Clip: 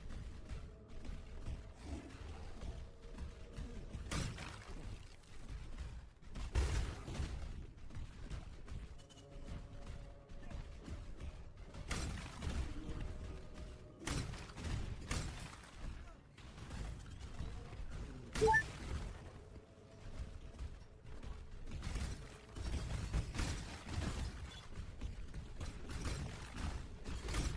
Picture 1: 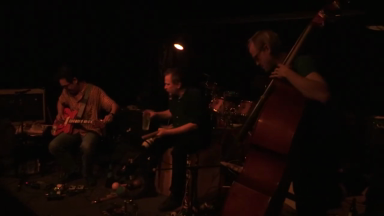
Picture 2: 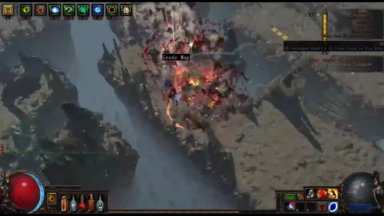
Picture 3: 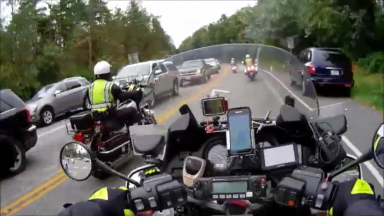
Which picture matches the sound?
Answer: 2